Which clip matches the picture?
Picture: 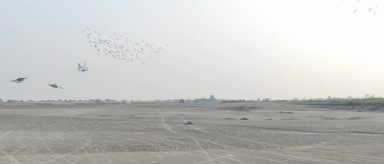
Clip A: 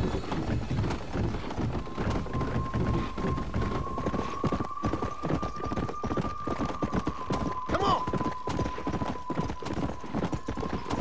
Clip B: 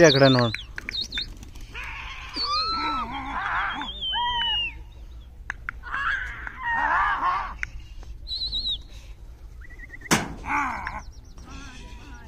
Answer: B